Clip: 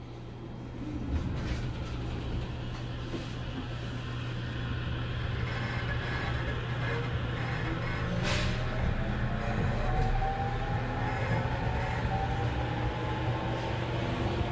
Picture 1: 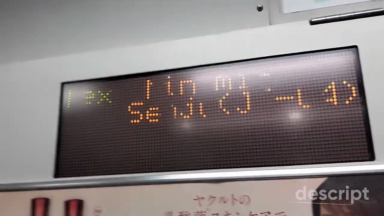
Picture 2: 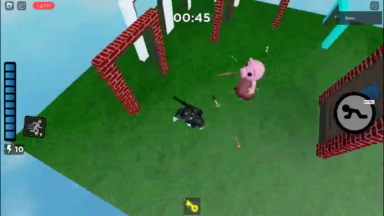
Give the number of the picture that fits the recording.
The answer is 1